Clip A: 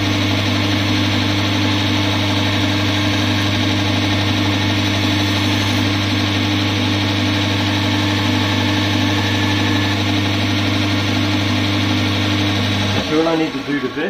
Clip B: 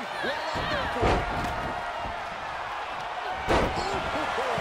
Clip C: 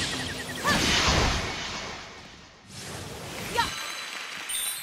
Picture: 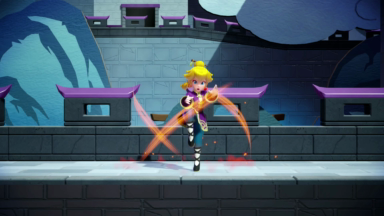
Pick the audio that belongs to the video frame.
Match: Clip C